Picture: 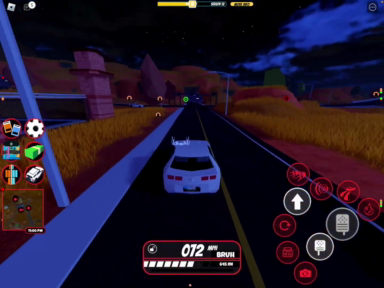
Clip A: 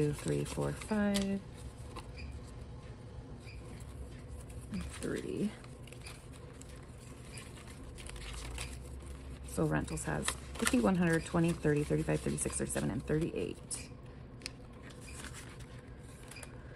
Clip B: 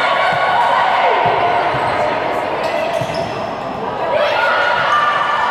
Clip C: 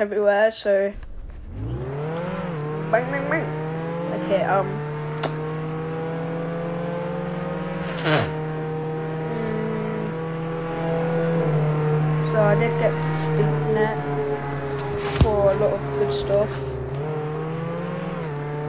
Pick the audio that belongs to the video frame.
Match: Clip C